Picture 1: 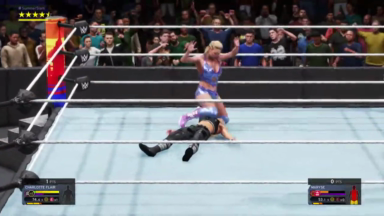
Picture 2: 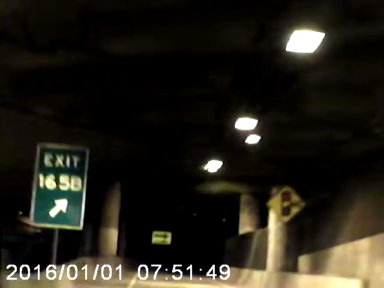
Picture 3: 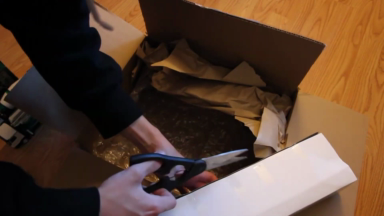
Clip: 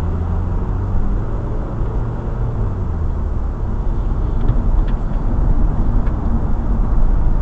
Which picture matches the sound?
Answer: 2